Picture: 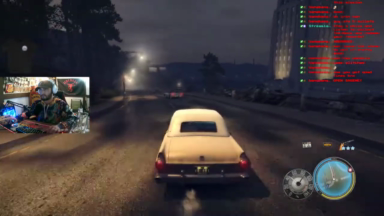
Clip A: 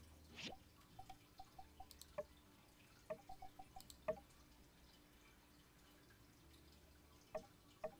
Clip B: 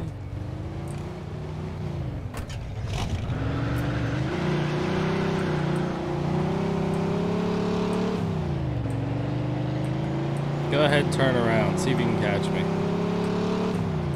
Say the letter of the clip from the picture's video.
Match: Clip B